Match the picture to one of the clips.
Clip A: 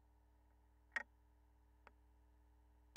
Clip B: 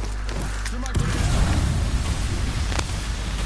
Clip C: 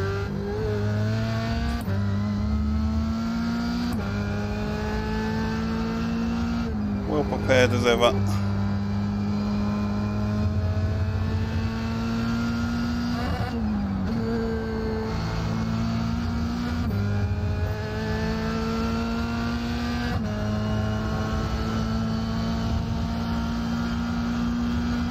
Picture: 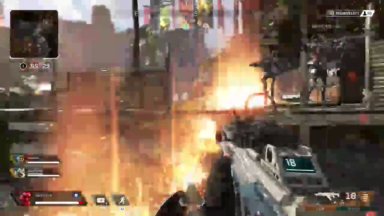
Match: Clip B